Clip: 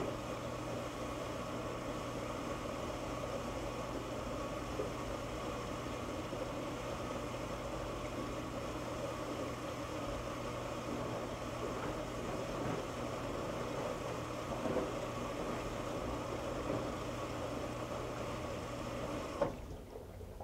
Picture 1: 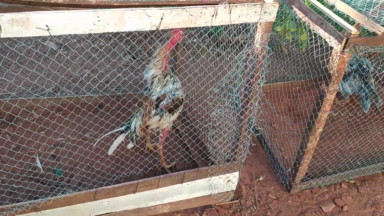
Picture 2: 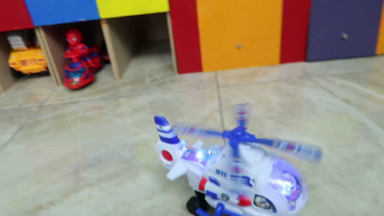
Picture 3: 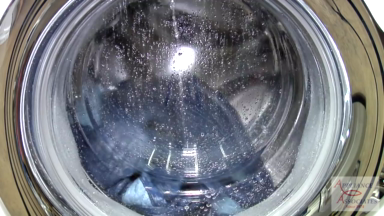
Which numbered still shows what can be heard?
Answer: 3